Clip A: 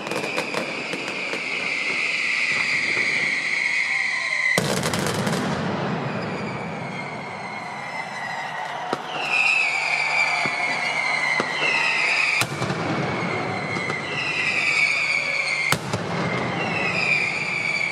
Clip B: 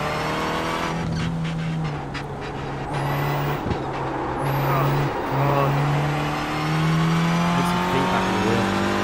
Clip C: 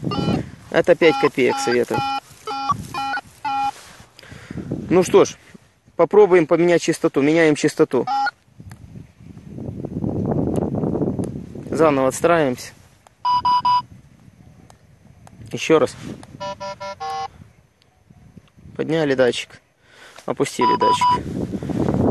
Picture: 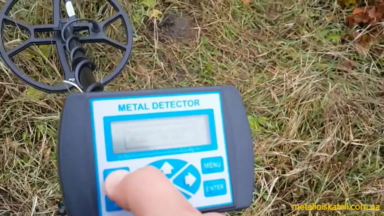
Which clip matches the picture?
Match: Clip C